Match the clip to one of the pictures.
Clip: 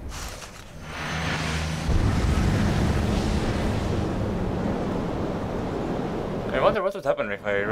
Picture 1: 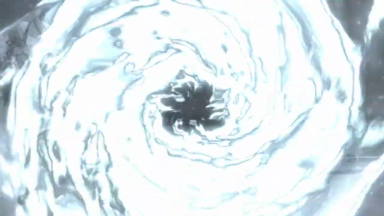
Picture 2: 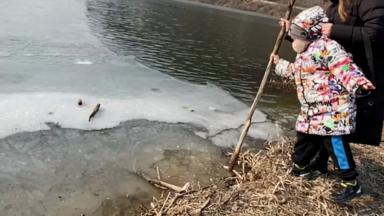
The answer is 1